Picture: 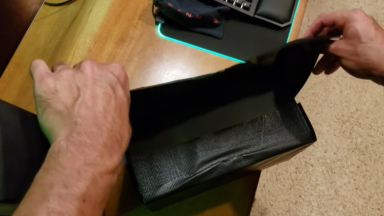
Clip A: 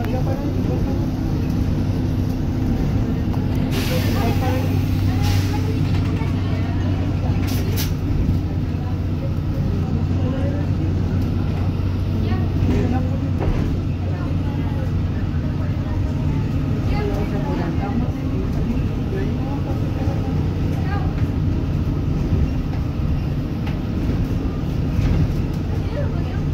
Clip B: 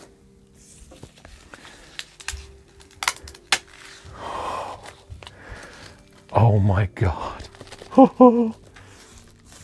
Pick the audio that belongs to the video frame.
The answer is B